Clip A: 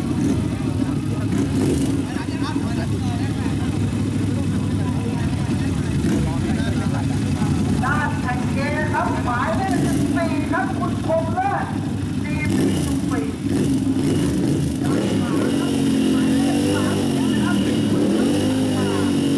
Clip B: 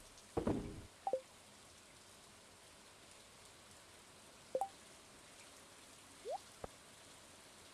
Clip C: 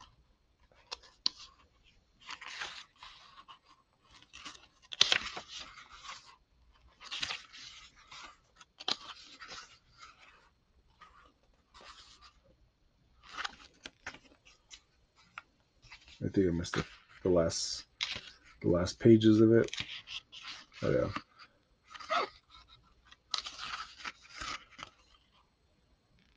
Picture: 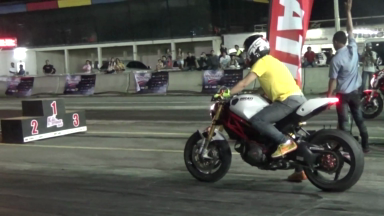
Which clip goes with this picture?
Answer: A